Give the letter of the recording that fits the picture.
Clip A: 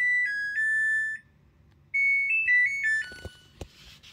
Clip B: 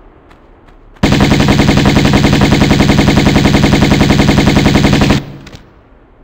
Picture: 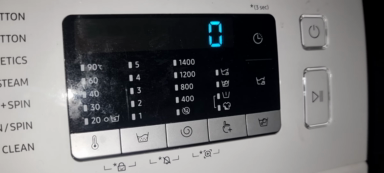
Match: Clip A